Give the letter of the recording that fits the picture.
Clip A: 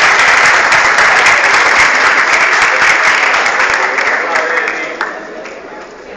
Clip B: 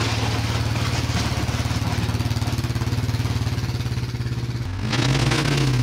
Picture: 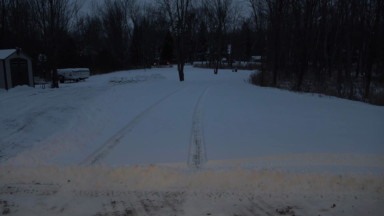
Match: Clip B